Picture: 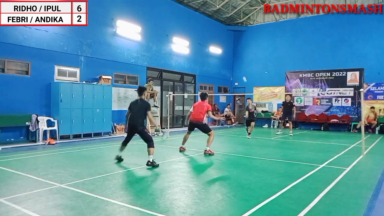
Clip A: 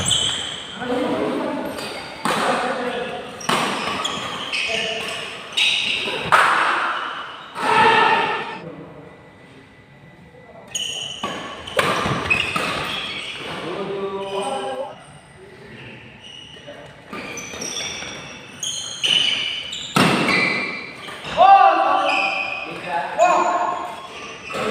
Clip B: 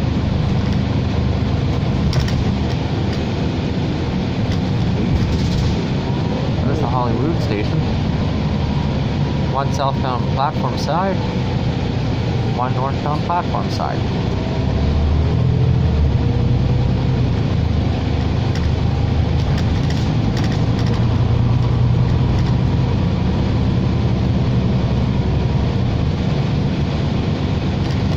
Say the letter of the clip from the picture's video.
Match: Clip A